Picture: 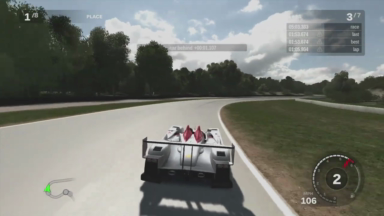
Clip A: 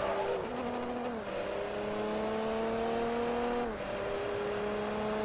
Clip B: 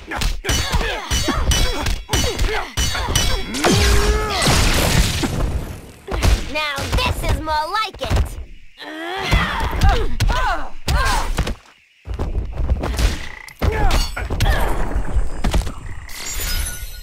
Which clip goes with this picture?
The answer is A